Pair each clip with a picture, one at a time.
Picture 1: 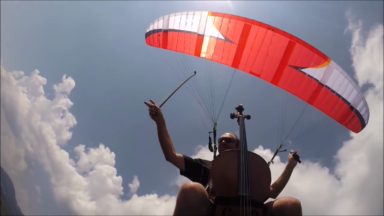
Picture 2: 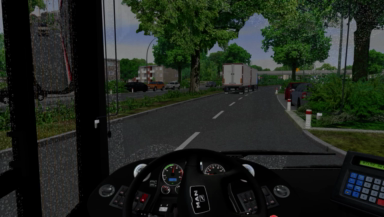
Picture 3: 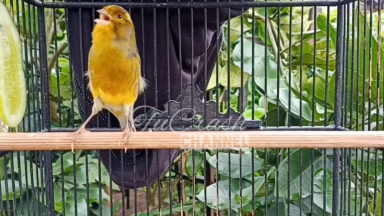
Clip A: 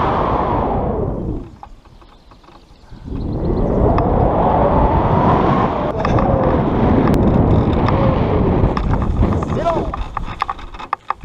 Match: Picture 1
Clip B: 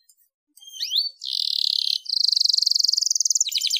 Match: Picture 3